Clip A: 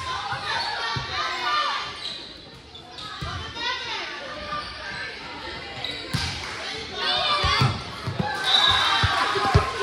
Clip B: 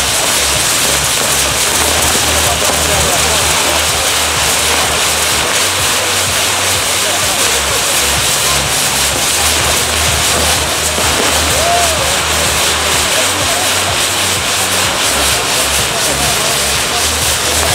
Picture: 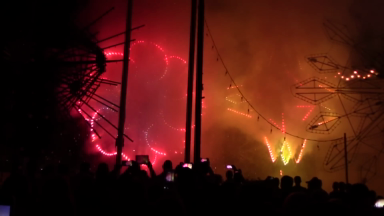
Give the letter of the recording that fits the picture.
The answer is B